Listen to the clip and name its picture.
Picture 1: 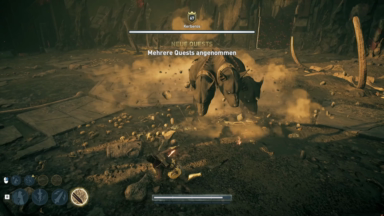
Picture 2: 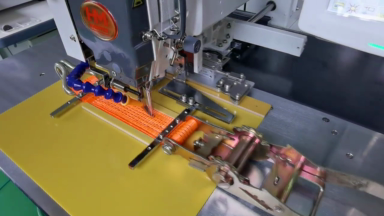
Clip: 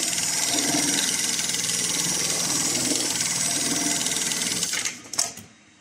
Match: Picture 2